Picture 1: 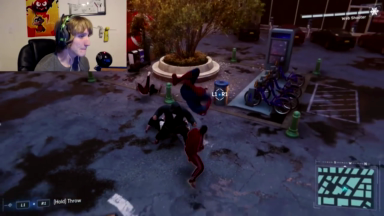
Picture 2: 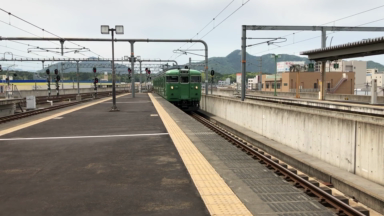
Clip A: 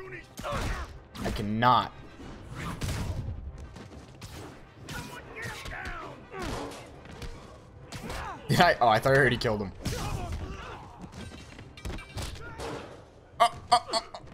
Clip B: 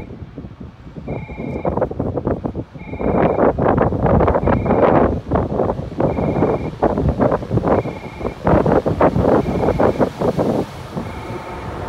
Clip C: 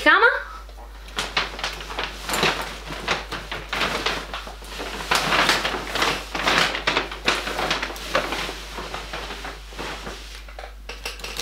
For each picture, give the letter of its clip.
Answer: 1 A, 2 B